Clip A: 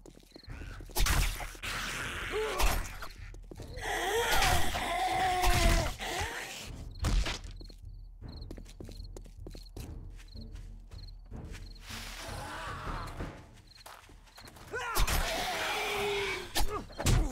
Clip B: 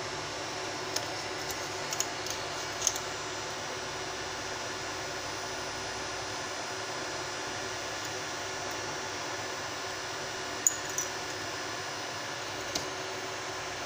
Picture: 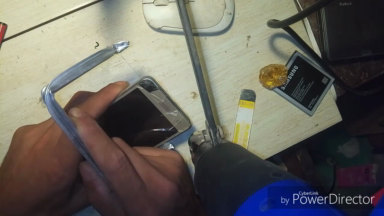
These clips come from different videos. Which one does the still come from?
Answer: B